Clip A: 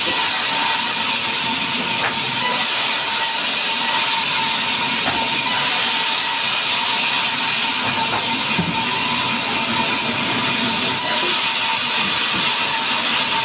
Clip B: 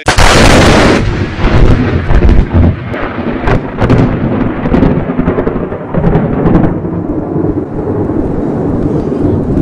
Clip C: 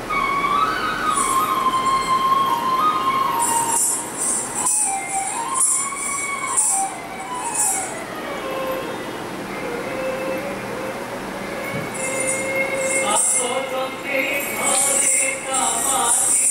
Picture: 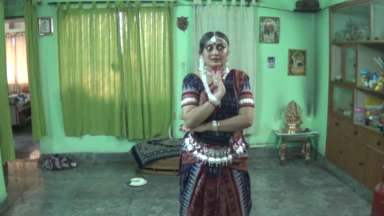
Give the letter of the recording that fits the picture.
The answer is C